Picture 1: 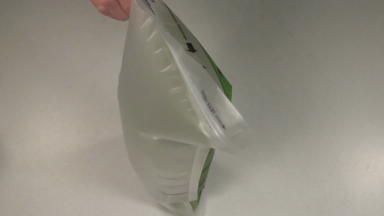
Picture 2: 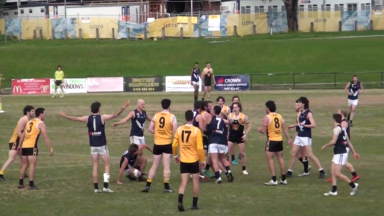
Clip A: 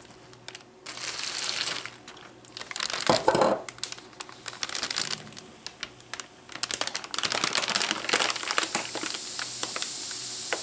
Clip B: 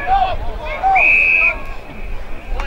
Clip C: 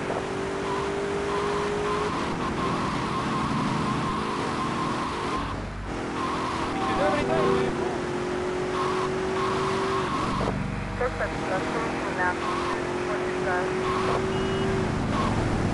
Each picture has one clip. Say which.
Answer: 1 A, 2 B